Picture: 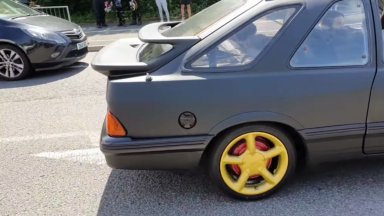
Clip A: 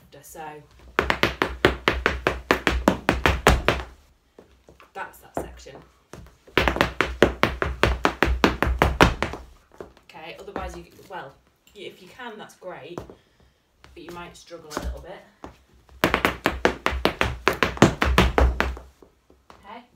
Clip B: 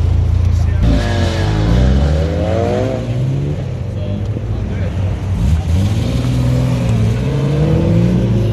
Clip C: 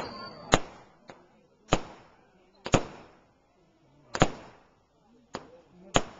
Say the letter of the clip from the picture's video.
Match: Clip B